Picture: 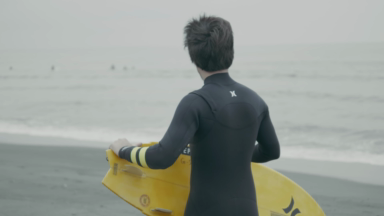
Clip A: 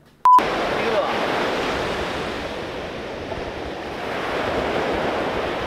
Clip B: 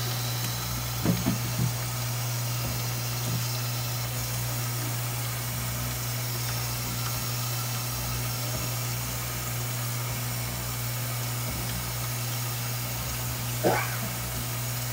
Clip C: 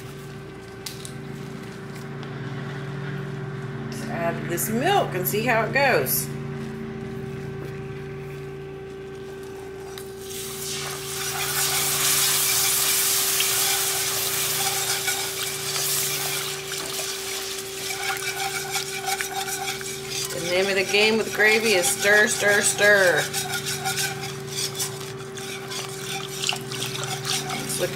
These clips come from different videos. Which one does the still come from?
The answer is A